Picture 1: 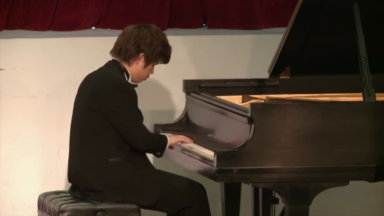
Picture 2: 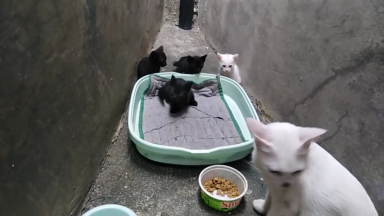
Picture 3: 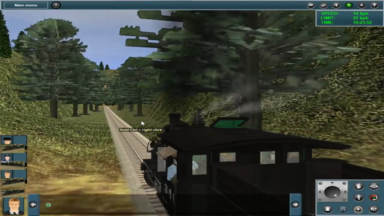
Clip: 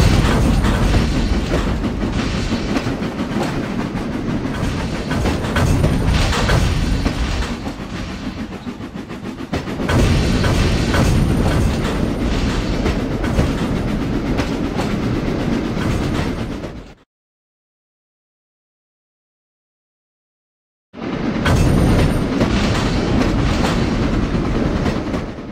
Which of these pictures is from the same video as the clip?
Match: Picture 3